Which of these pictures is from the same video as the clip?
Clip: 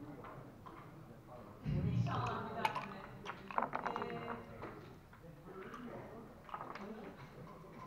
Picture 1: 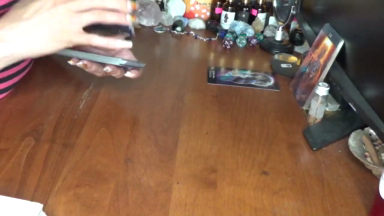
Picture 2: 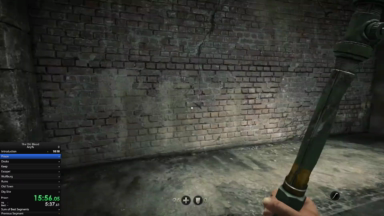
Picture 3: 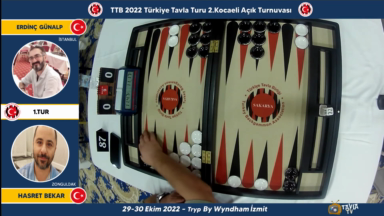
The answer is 3